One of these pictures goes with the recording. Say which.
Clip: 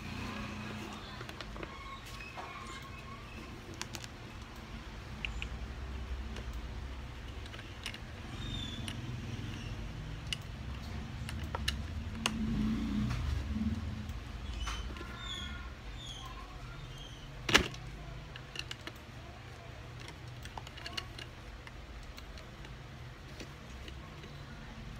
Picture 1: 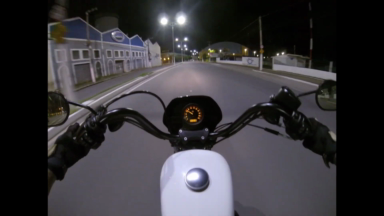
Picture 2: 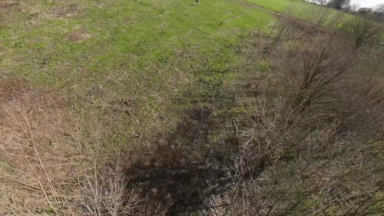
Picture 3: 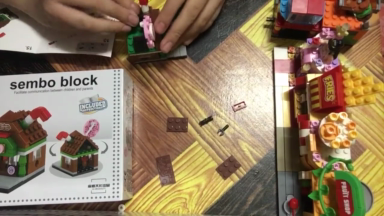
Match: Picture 3